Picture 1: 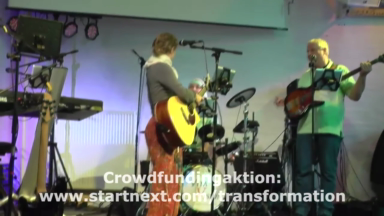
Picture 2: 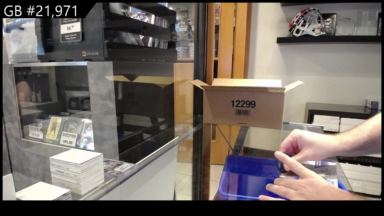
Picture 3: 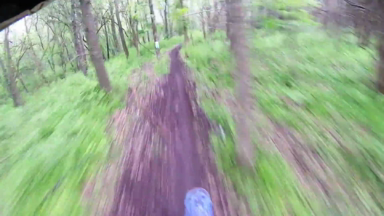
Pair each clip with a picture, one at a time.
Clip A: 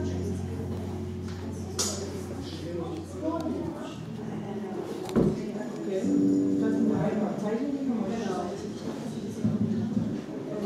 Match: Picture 1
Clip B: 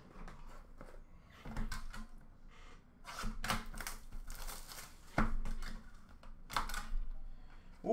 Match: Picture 2